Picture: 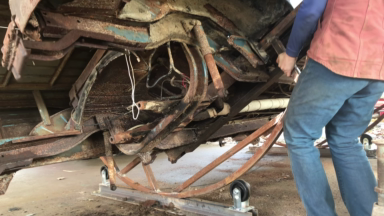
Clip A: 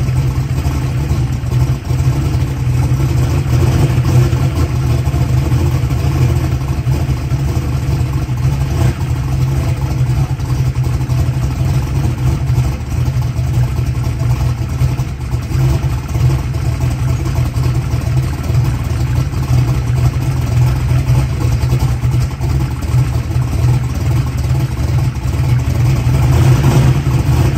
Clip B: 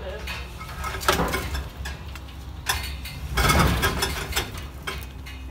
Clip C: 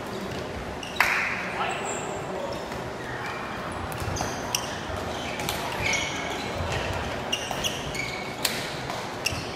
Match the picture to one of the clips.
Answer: B